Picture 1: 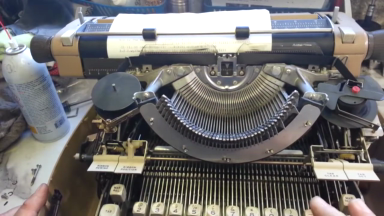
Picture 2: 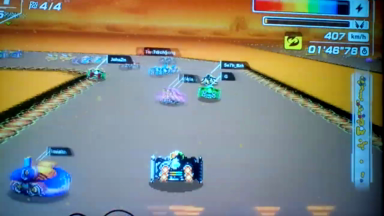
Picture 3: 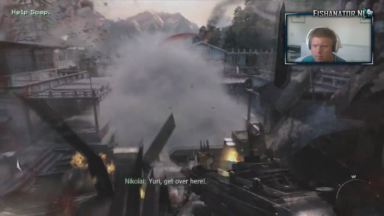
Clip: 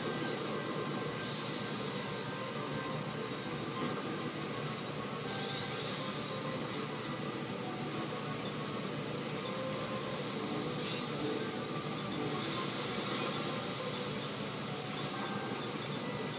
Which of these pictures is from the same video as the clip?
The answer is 2